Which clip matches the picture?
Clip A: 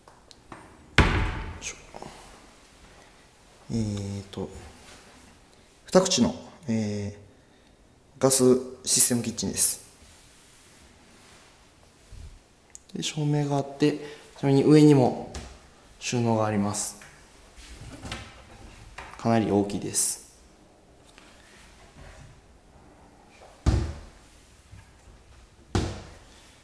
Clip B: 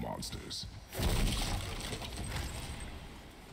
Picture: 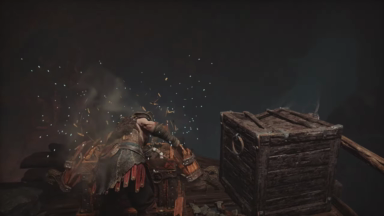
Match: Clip B